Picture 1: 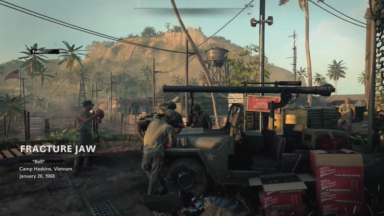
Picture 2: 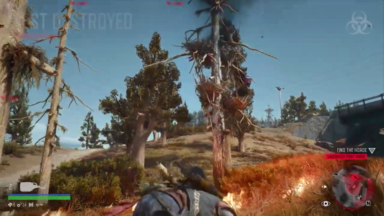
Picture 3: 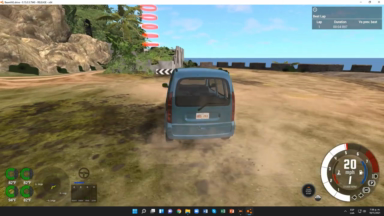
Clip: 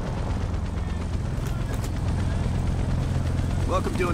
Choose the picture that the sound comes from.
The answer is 1